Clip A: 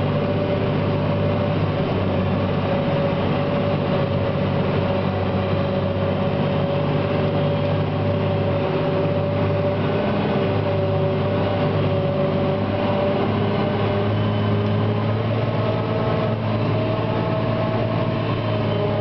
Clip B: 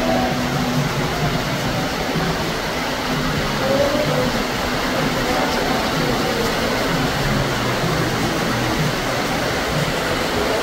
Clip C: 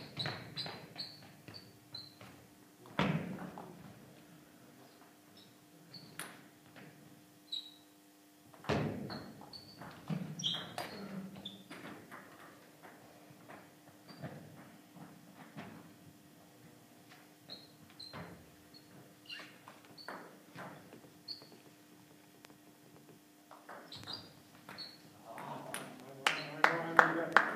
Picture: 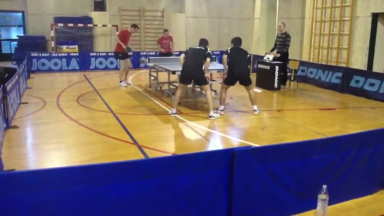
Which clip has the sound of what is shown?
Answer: C